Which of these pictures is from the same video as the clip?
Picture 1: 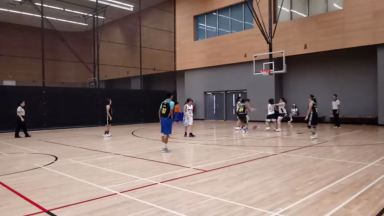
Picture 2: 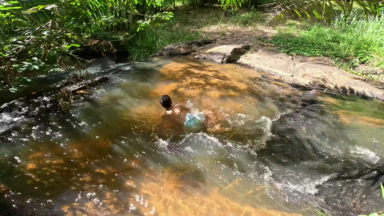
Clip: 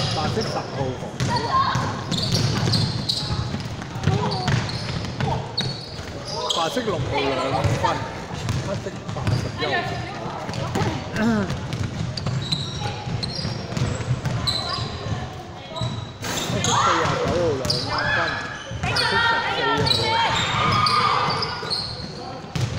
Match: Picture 1